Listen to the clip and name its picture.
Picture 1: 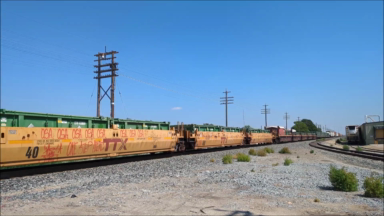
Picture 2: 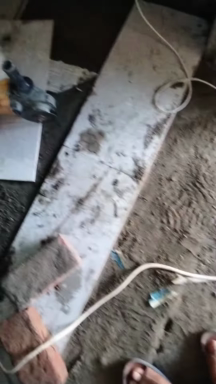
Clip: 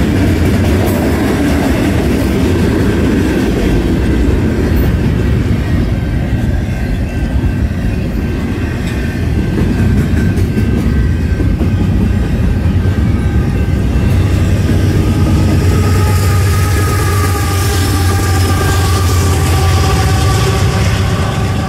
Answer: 1